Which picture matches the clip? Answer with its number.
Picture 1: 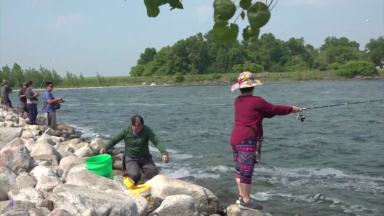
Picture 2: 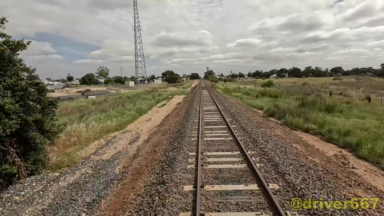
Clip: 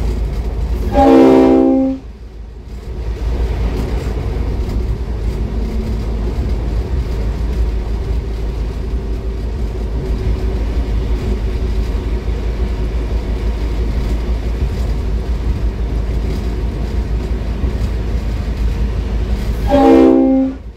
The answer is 2